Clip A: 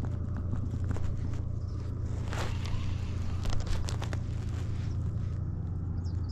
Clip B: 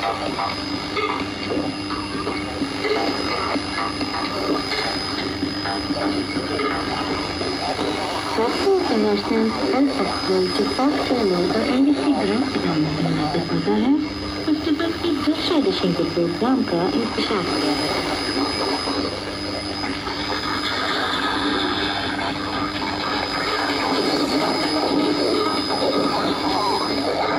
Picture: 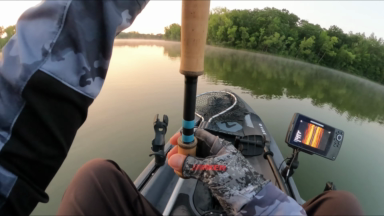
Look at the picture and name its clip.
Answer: A